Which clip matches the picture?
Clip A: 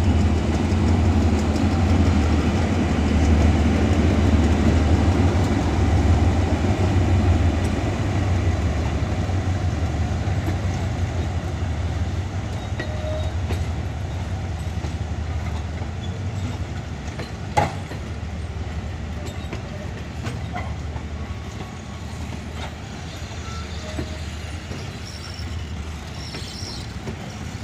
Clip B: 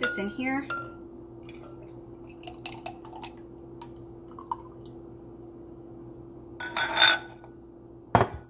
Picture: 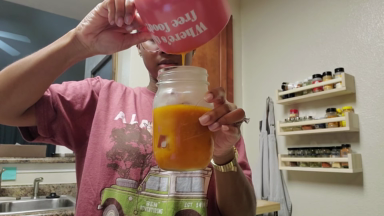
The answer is B